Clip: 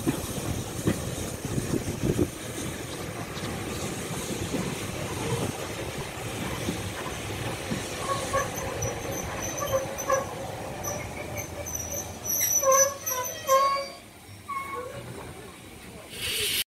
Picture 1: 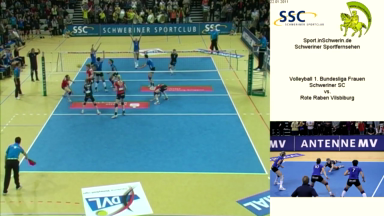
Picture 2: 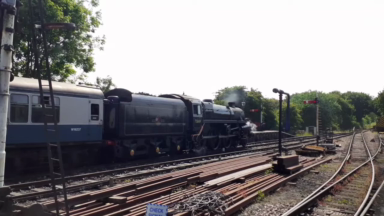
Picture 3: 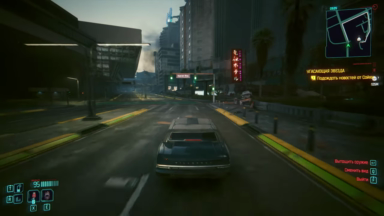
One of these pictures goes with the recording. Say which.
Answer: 2